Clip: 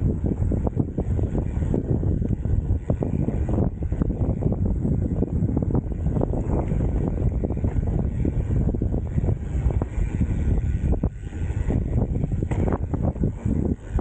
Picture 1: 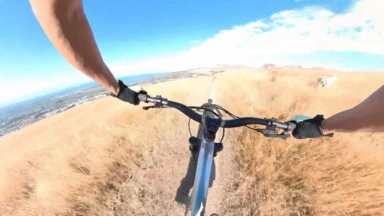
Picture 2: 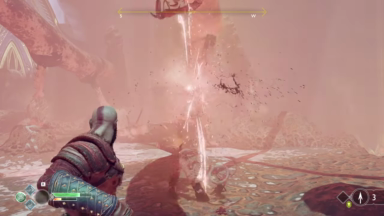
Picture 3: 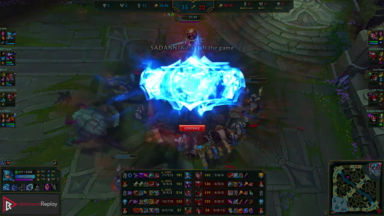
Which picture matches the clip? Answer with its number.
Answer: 1